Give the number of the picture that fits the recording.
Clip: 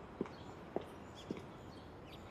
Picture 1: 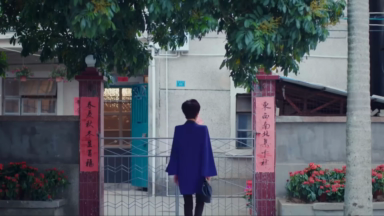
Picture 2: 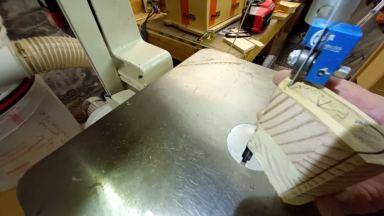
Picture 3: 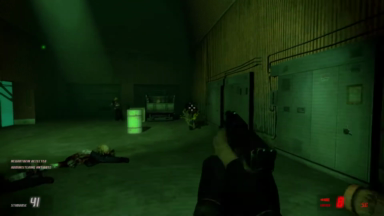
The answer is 1